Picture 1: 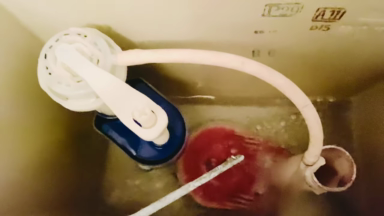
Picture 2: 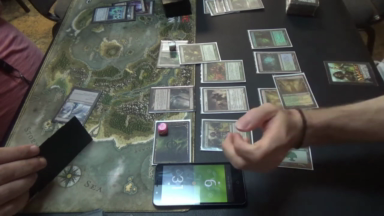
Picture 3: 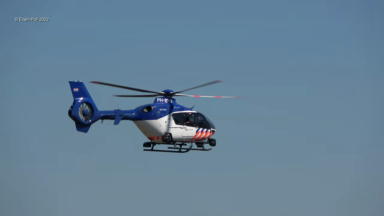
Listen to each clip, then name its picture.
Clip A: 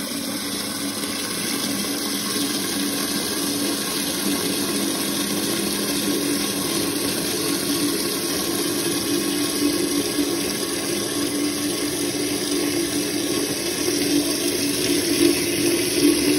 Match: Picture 1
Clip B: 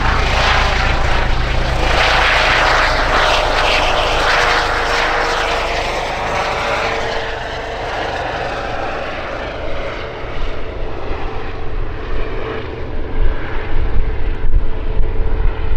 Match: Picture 3